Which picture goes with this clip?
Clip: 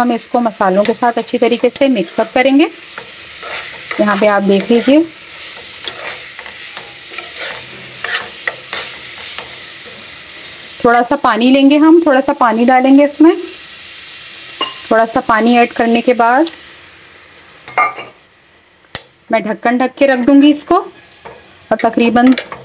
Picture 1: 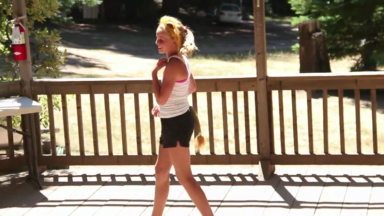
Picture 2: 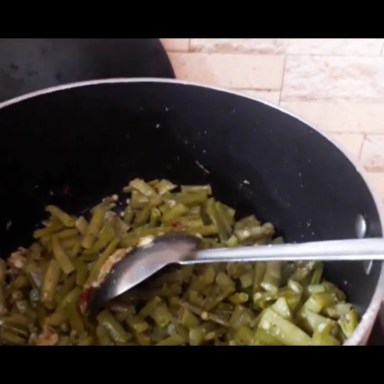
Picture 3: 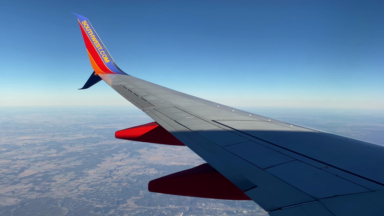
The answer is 2